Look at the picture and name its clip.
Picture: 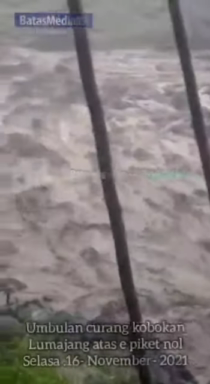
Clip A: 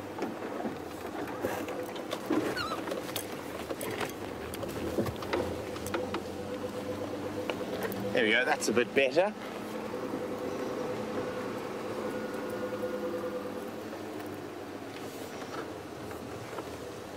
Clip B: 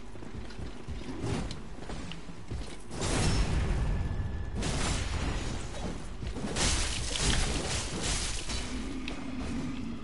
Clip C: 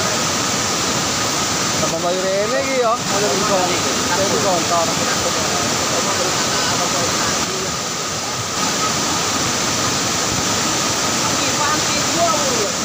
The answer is C